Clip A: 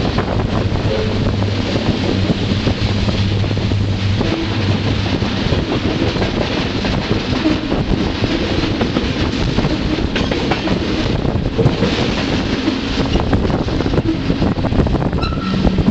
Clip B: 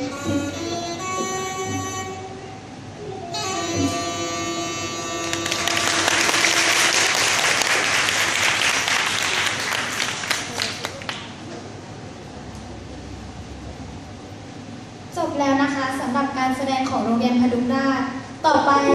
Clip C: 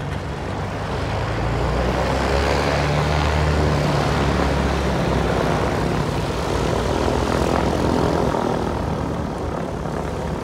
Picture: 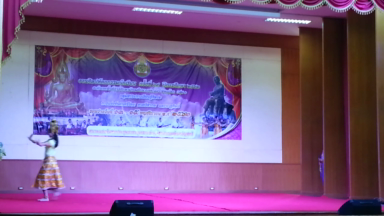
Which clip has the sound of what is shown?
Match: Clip B